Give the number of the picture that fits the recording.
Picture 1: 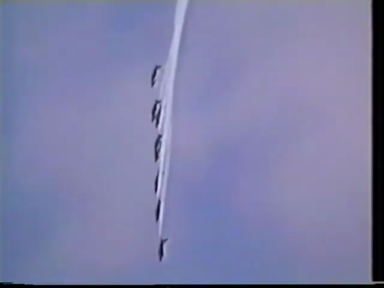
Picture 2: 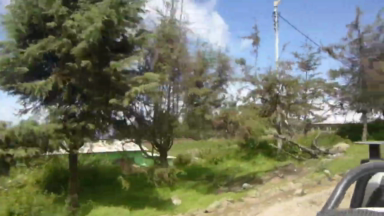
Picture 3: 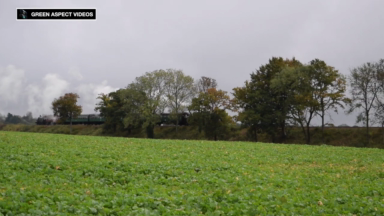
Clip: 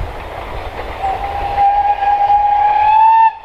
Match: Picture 3